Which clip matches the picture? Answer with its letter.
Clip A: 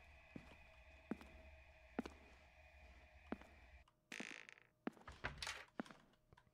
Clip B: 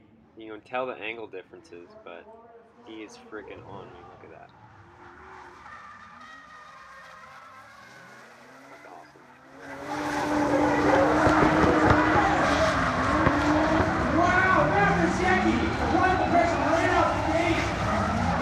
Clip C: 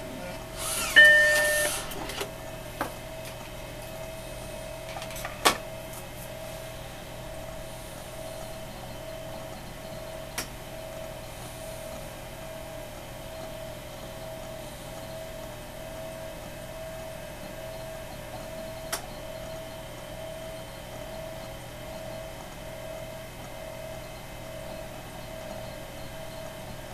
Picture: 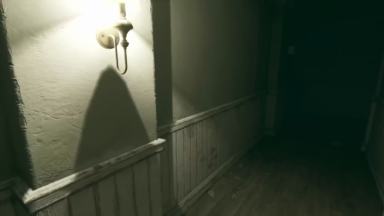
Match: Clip A